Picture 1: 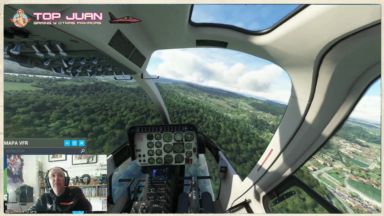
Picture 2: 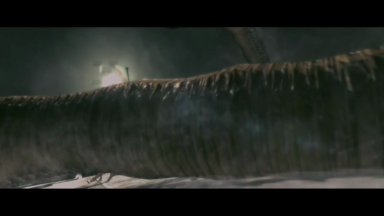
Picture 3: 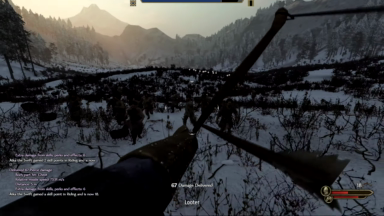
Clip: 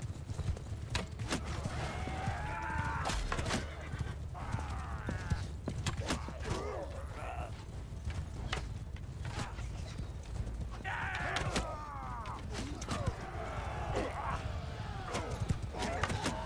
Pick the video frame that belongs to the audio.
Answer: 3